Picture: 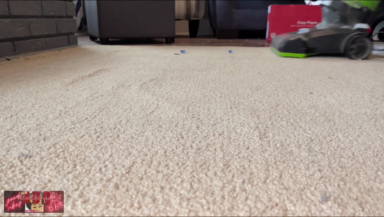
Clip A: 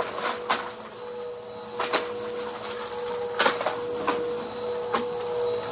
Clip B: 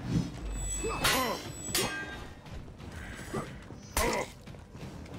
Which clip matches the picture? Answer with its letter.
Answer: A